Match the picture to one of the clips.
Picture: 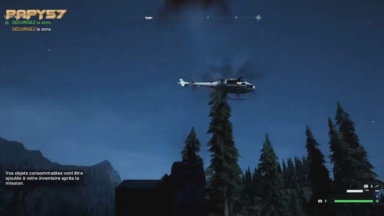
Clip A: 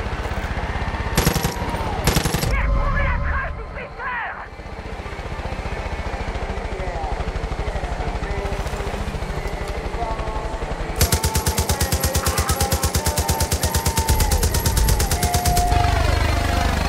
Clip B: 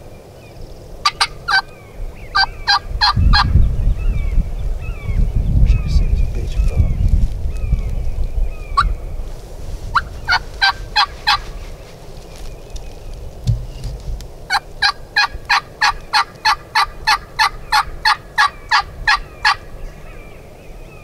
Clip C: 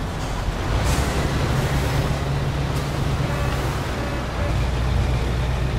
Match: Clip A